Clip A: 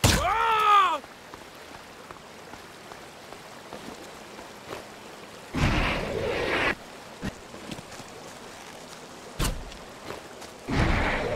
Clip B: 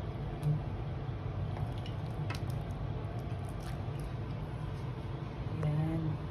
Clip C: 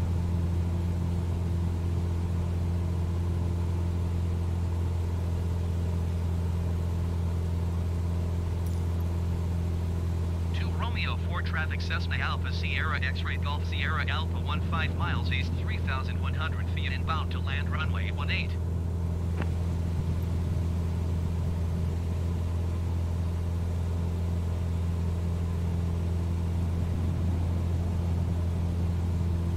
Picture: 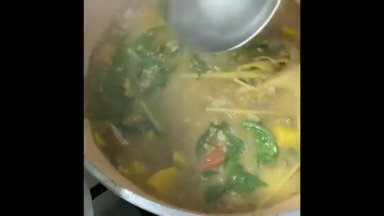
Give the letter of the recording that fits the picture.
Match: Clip B